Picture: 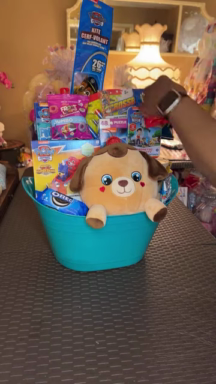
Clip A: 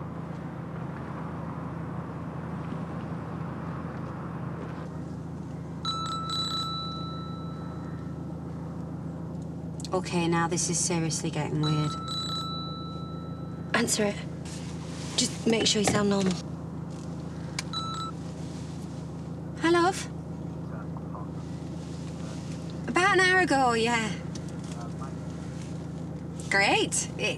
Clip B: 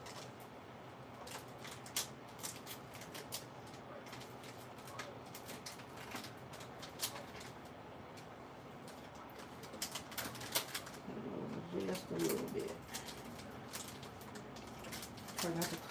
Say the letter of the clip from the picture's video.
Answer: B